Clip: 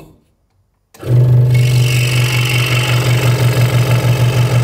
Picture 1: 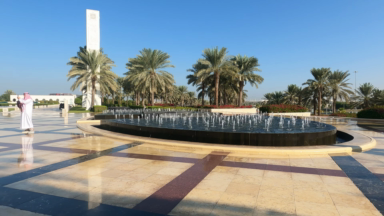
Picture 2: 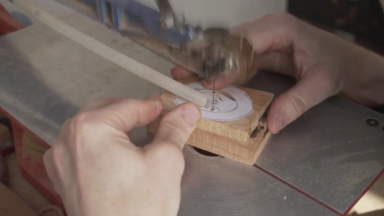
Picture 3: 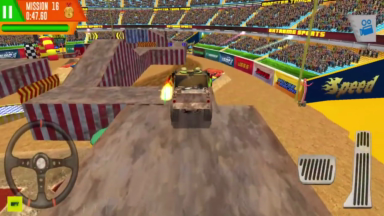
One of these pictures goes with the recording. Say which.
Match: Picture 2